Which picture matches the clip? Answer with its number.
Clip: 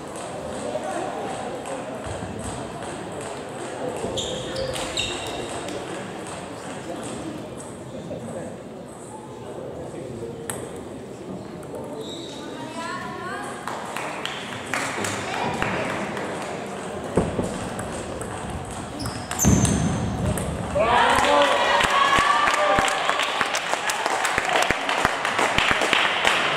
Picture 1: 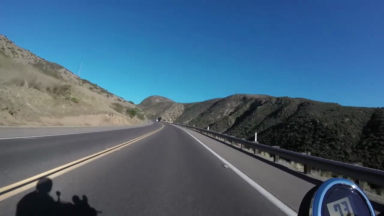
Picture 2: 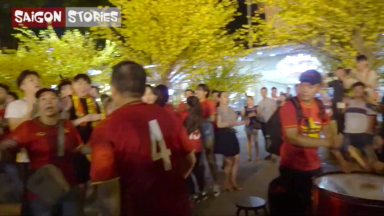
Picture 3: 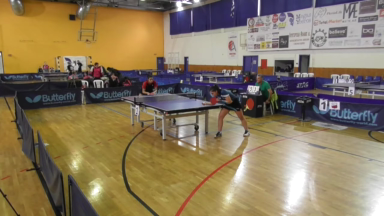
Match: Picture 3